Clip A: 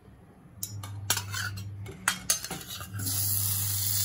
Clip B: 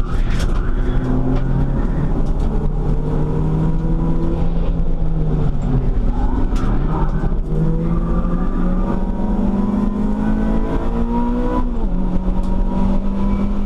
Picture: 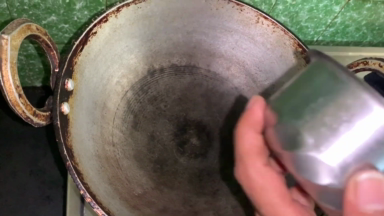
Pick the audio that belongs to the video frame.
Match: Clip A